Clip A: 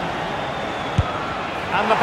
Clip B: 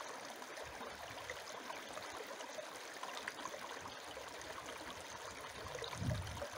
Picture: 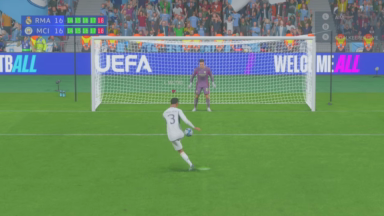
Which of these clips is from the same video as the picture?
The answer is A